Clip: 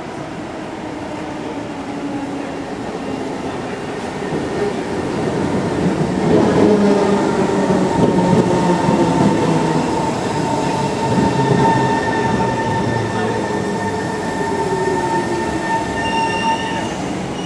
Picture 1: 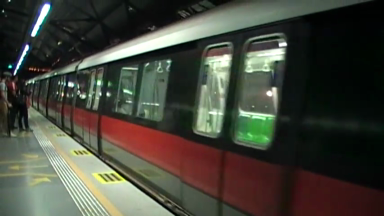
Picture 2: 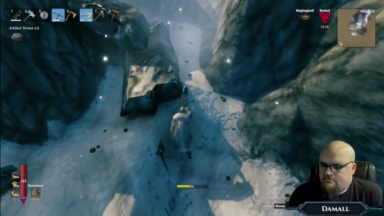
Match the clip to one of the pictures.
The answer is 1